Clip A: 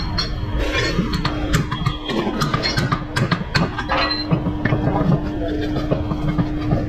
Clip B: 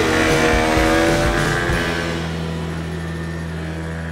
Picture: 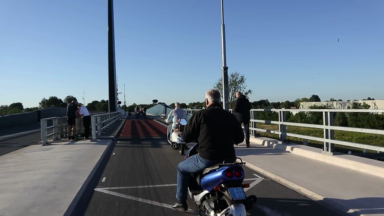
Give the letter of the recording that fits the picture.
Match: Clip B